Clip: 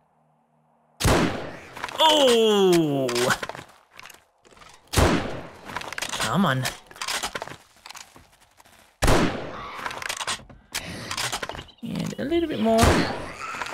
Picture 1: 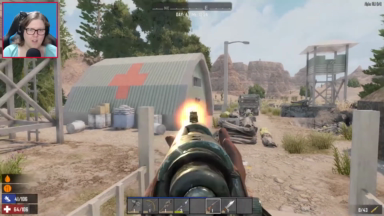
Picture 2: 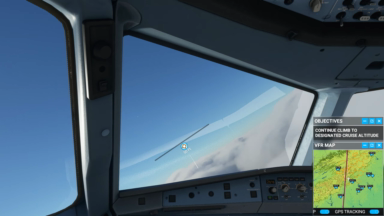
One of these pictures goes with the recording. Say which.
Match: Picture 1